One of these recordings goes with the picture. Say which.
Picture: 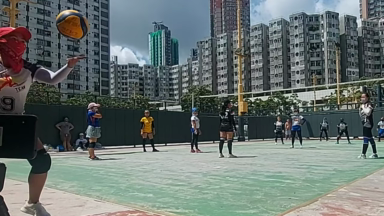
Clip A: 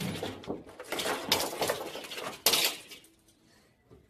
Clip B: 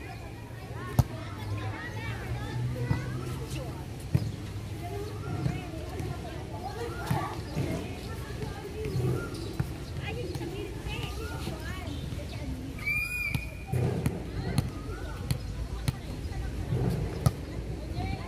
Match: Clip B